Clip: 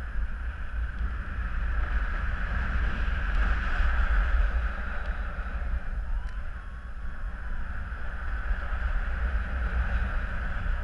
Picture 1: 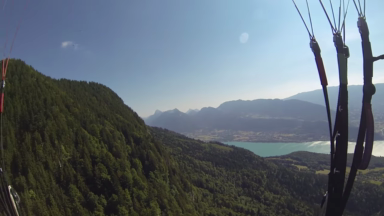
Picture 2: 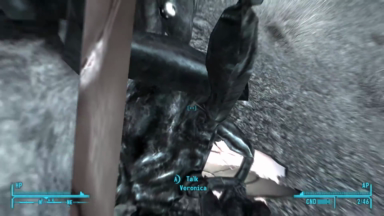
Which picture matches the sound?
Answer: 1